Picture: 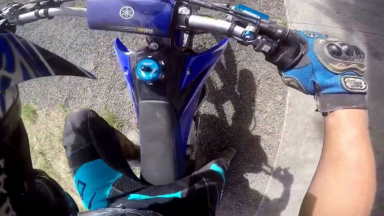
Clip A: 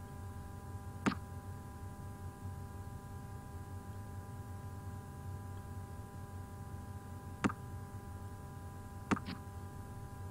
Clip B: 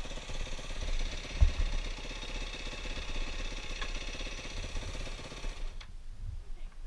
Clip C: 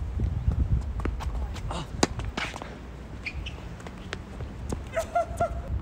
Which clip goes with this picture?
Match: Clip B